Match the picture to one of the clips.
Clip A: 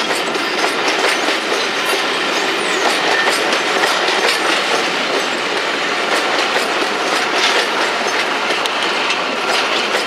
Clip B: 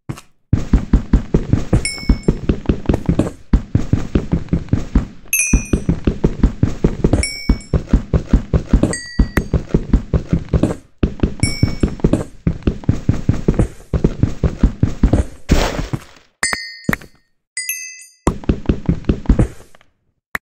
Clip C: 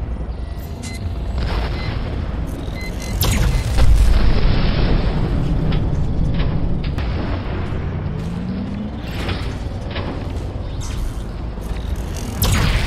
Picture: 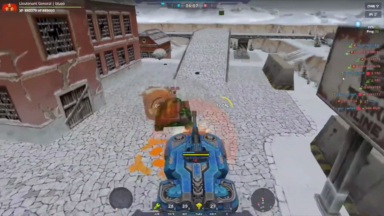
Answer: C